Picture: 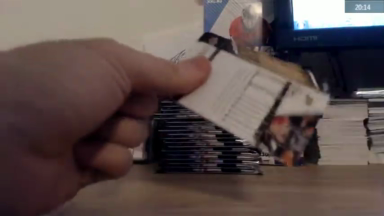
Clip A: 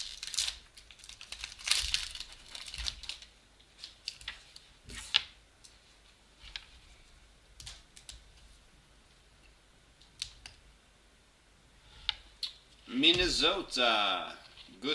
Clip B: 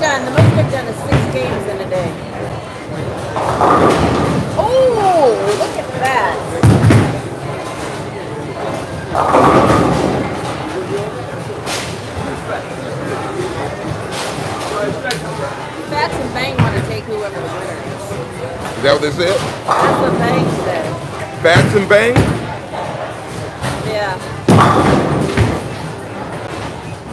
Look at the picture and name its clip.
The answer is A